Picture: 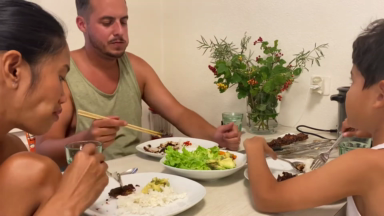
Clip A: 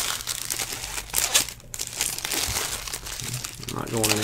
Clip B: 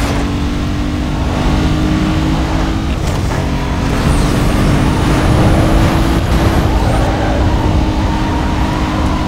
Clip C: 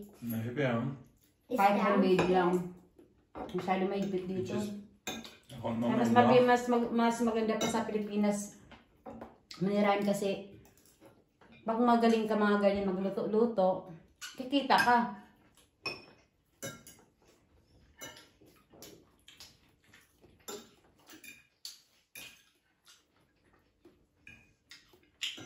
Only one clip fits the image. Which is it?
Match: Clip C